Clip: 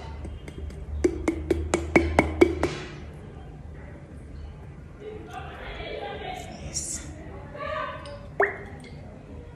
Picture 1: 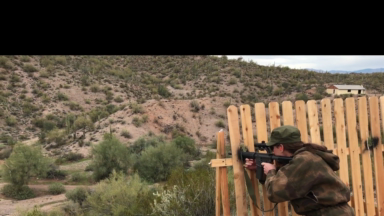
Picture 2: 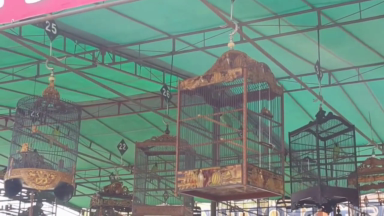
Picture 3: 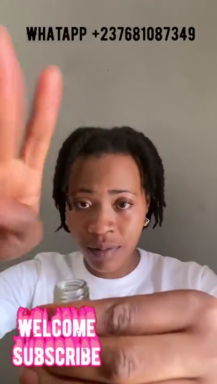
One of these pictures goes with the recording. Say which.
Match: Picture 3